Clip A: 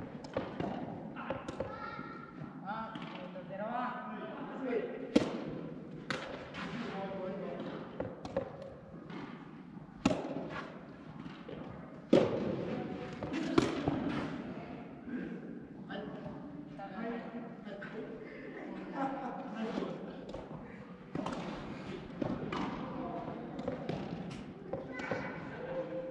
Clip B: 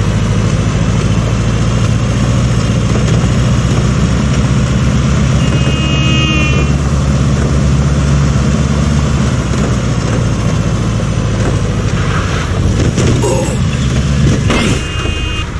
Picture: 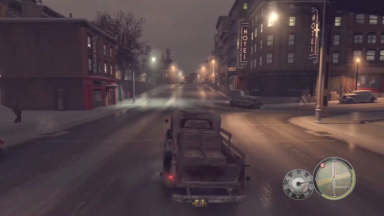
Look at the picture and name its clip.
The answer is B